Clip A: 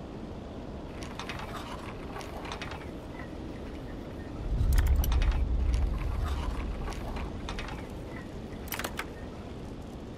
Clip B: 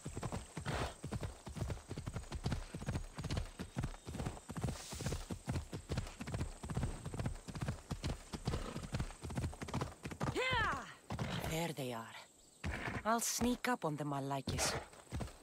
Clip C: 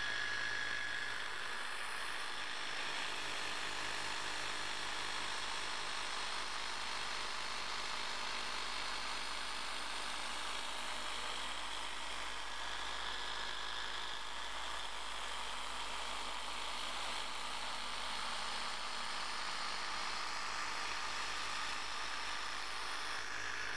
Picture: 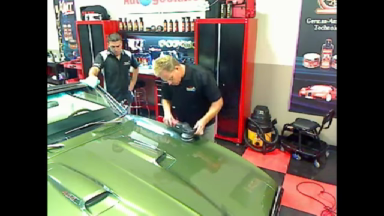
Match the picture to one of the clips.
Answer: C